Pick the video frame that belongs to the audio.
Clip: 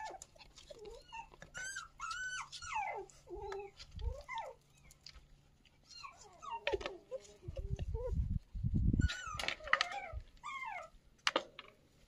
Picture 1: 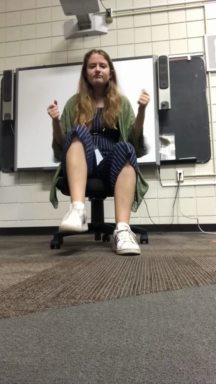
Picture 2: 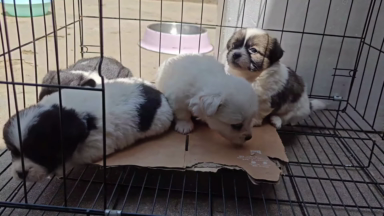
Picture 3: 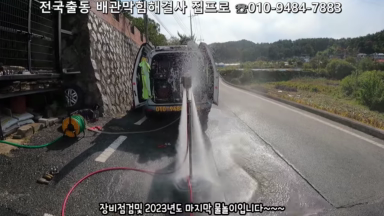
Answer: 2